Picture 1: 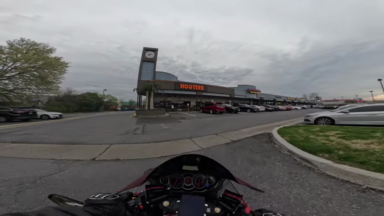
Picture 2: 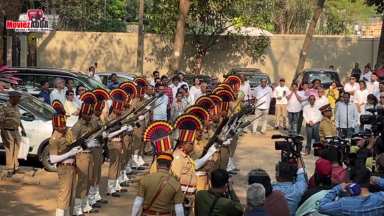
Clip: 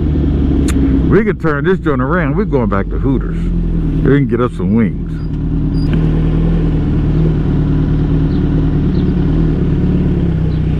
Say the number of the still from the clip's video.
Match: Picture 1